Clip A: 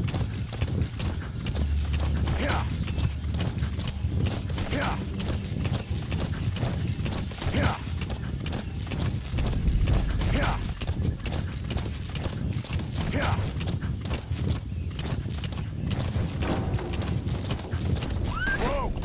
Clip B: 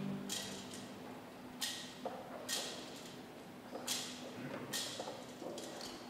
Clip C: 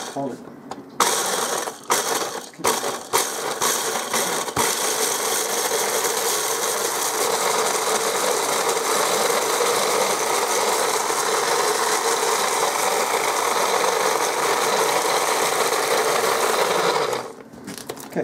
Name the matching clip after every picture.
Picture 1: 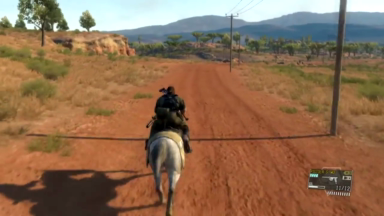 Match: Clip A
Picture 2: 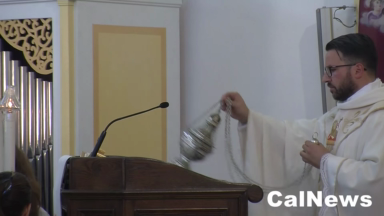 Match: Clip B